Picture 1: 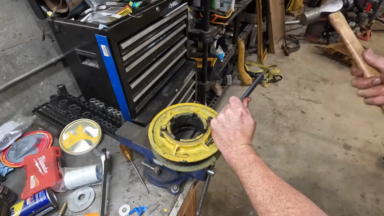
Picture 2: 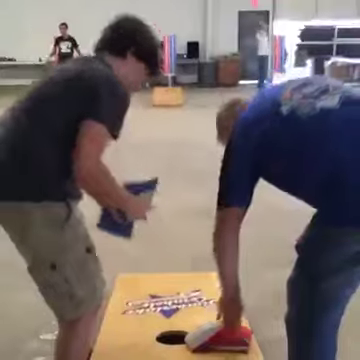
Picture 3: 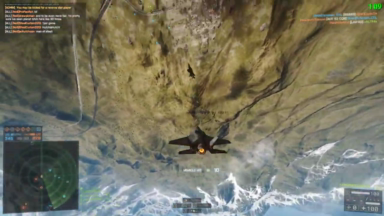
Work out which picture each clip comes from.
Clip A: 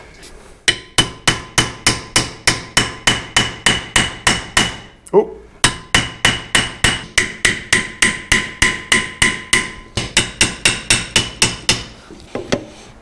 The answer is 1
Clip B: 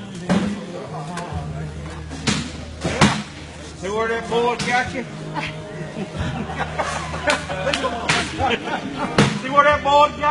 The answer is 2